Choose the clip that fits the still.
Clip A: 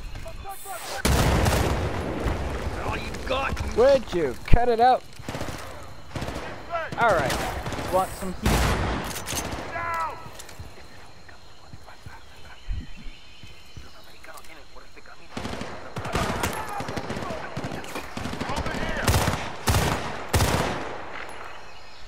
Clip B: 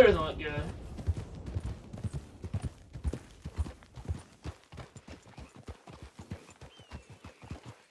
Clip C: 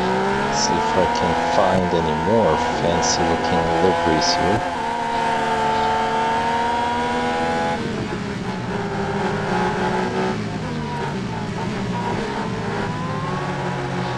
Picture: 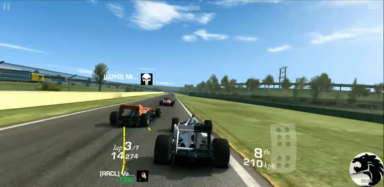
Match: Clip C